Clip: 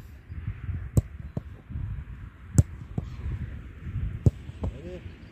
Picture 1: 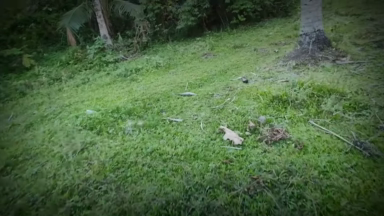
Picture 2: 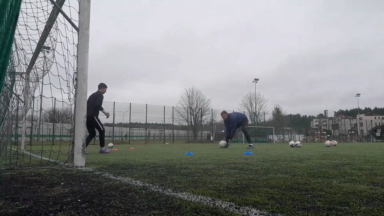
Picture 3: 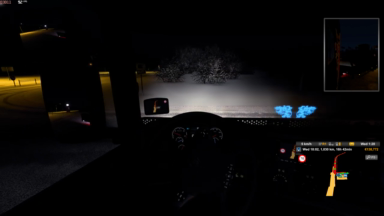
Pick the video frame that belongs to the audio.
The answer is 2